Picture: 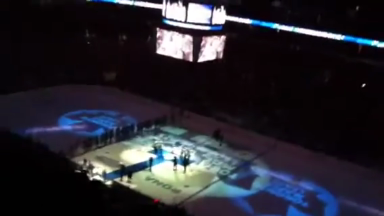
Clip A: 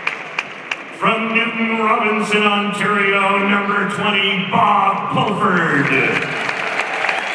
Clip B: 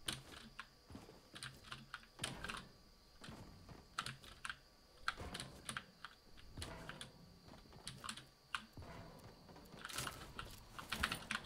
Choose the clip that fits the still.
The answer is A